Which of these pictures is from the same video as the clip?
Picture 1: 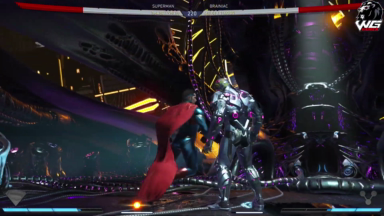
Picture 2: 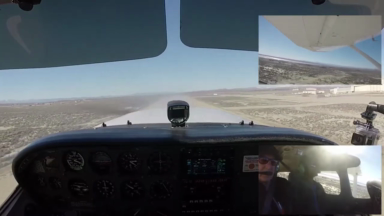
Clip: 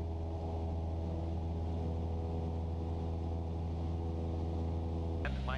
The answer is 2